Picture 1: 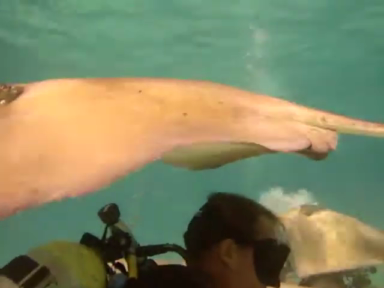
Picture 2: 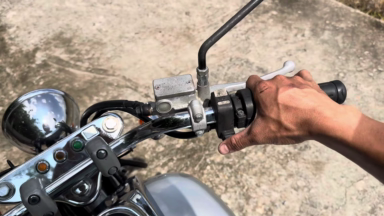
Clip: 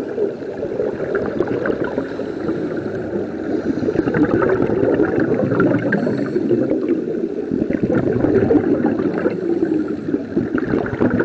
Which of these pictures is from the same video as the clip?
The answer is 1